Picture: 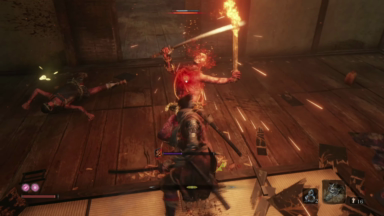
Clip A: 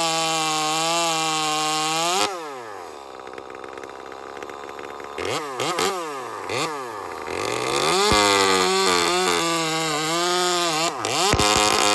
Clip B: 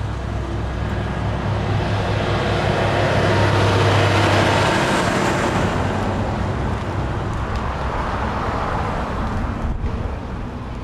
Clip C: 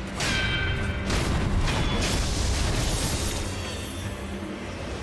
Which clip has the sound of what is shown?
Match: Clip C